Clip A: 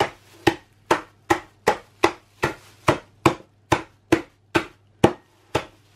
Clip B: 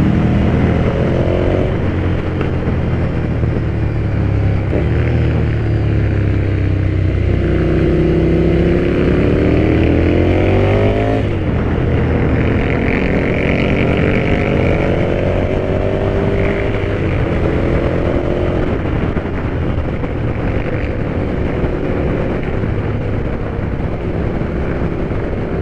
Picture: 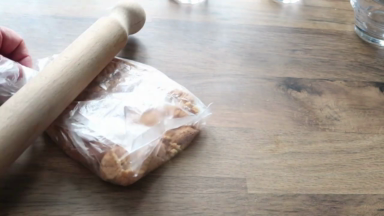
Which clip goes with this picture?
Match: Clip A